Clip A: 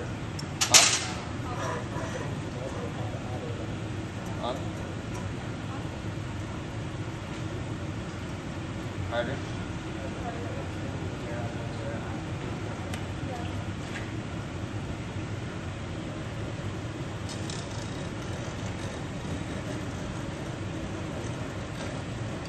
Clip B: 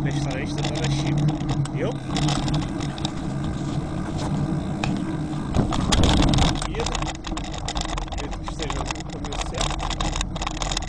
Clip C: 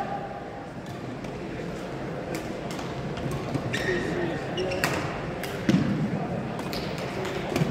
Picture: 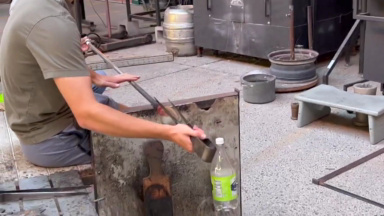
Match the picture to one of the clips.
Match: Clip A